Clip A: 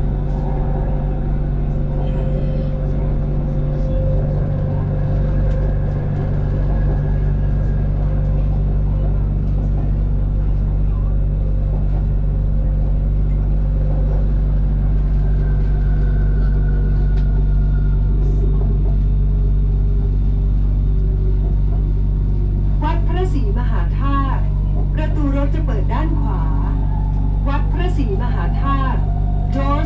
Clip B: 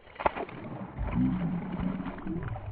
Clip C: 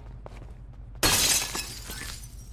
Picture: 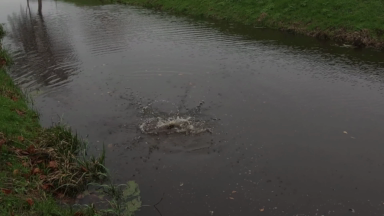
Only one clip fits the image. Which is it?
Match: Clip B